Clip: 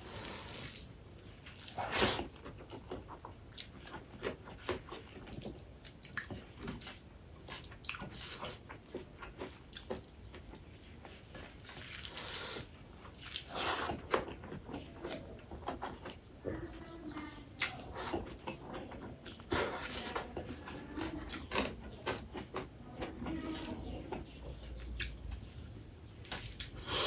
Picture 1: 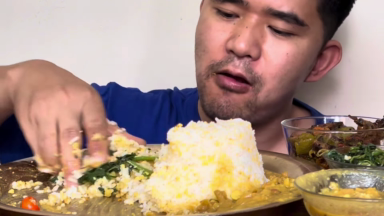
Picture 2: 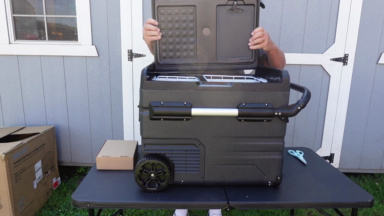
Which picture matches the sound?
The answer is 1